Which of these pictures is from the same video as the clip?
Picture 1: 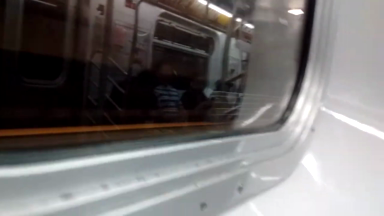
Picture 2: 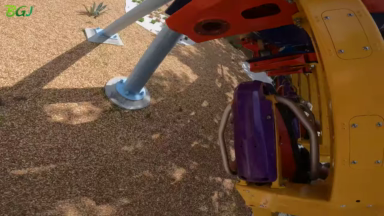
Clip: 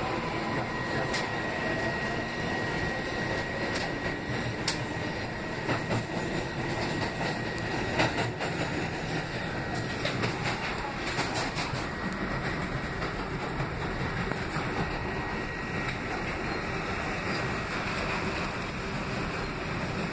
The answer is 1